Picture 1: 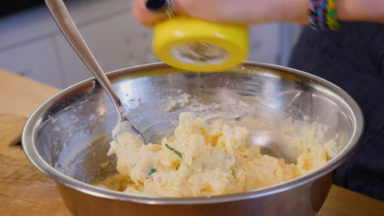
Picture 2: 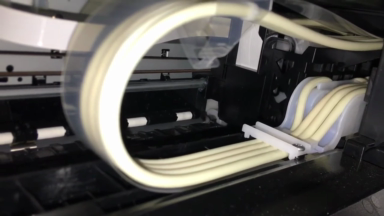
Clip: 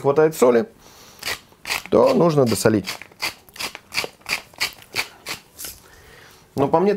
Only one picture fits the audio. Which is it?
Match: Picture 1